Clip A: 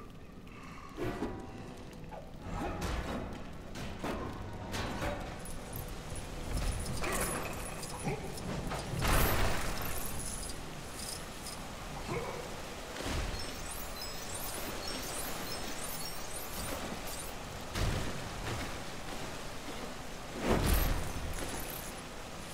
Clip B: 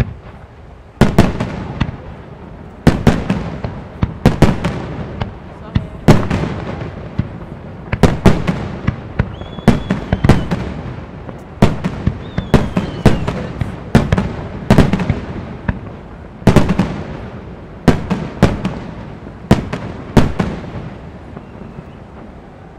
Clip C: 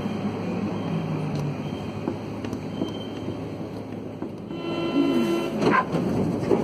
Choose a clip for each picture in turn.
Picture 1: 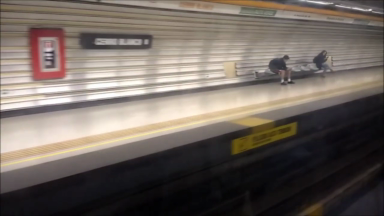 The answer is C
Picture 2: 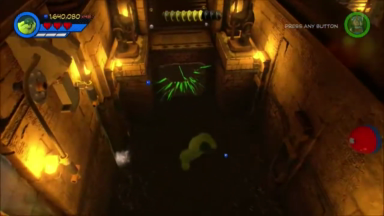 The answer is A